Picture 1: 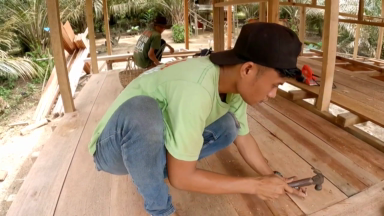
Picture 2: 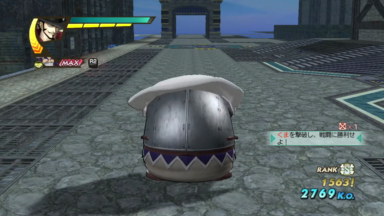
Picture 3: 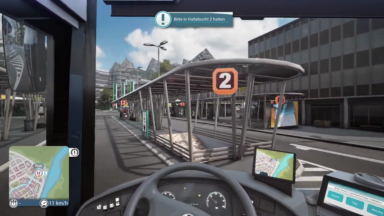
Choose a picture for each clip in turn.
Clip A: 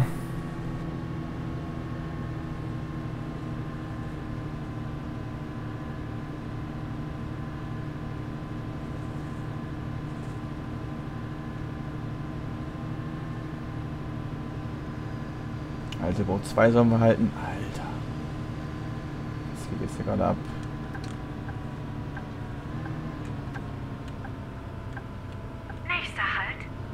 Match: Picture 3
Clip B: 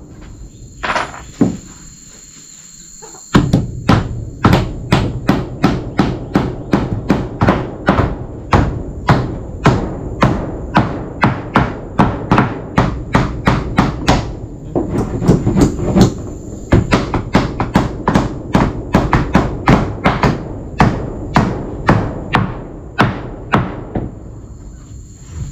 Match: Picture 1